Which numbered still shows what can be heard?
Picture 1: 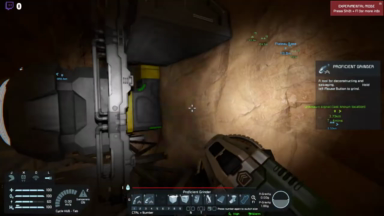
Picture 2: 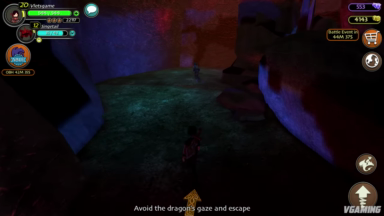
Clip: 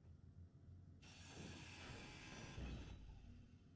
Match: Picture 1